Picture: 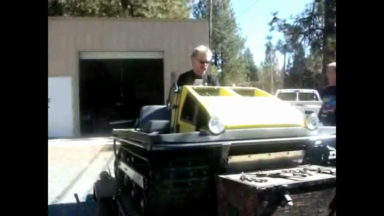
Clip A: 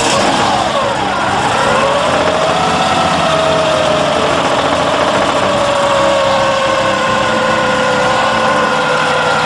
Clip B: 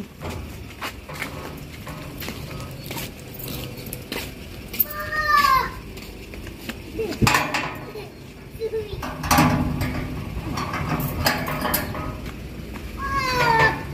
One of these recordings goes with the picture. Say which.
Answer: A